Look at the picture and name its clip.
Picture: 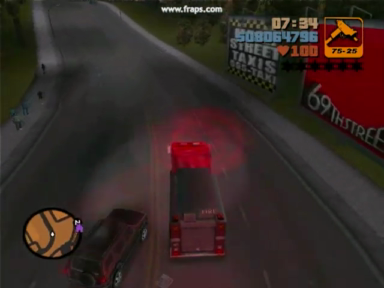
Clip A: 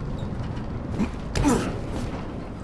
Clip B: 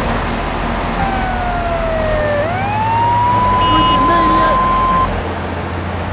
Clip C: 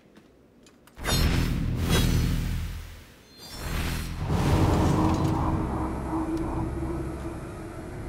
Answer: B